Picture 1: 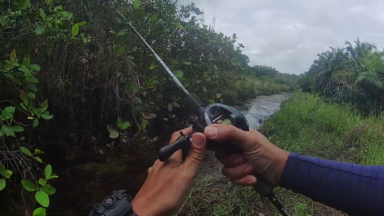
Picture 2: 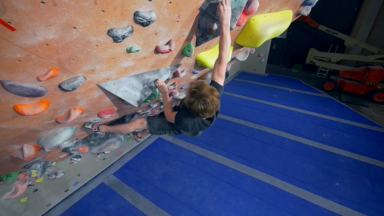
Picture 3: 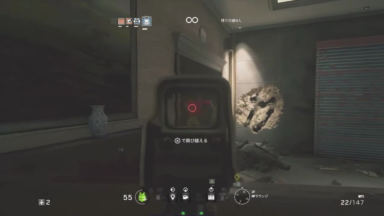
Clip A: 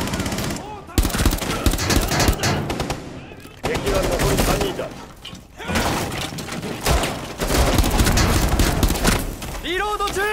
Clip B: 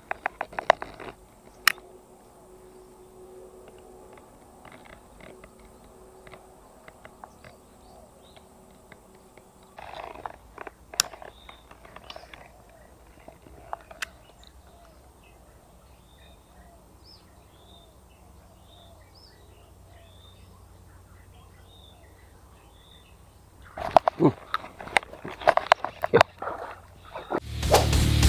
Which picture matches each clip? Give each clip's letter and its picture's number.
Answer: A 3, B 1